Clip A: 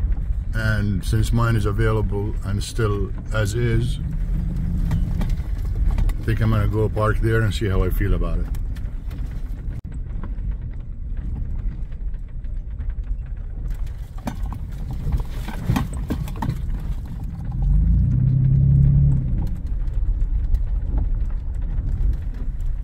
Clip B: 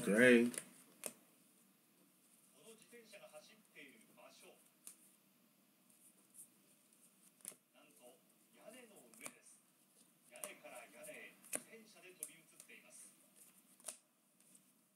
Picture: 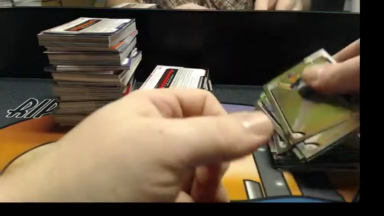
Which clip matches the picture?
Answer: B